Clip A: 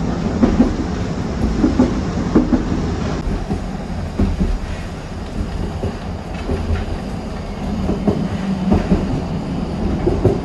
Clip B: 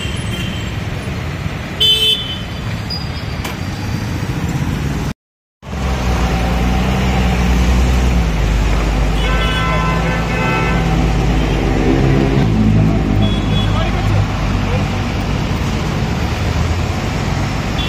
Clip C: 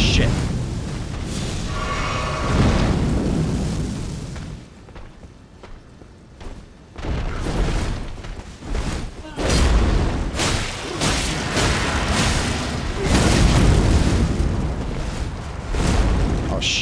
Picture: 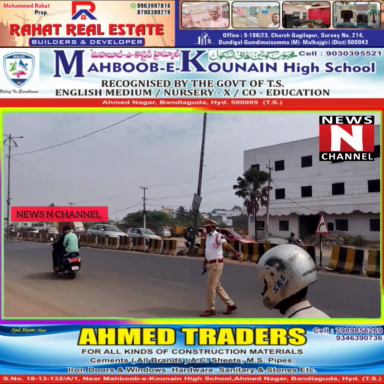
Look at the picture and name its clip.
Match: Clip B